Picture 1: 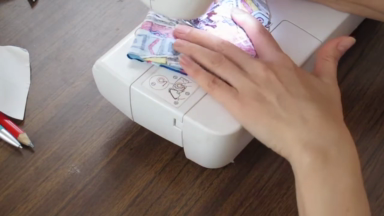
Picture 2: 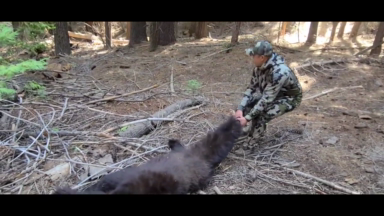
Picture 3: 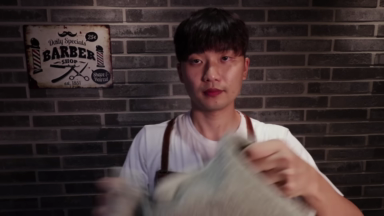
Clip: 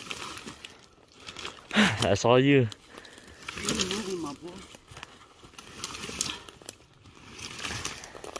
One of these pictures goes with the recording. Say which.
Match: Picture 2